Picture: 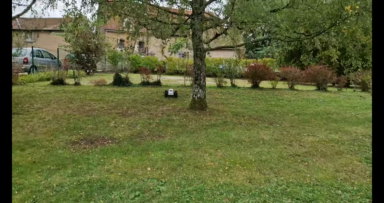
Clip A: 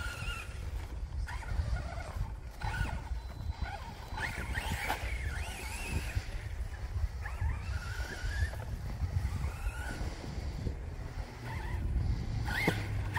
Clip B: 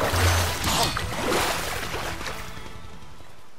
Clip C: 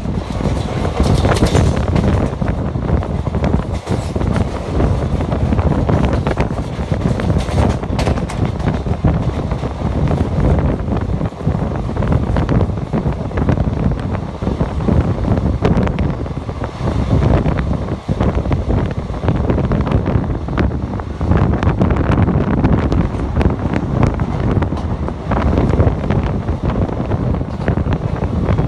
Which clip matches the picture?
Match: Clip A